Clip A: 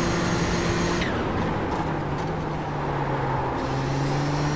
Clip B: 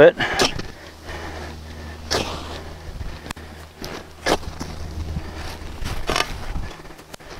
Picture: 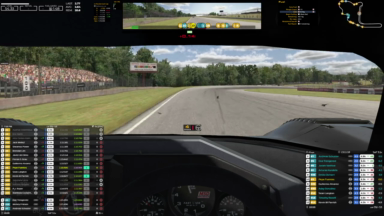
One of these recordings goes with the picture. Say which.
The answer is A